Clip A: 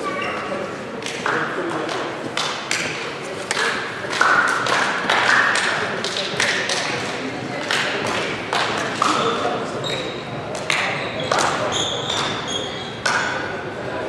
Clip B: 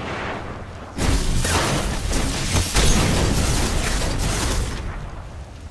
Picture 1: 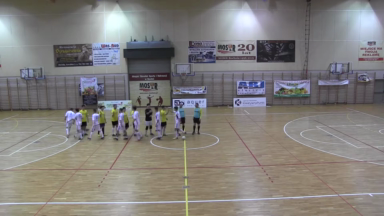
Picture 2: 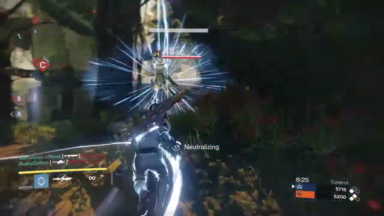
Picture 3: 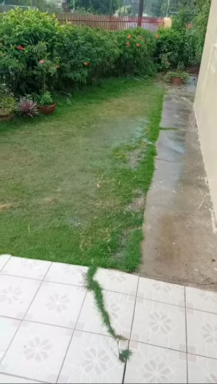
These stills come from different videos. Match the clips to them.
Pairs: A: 1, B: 2